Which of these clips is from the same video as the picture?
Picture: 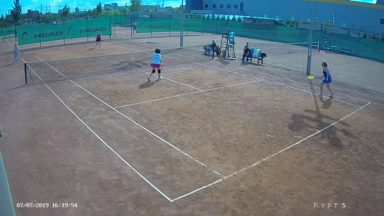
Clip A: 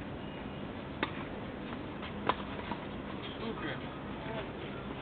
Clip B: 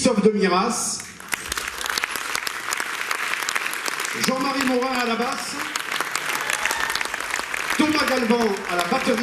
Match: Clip A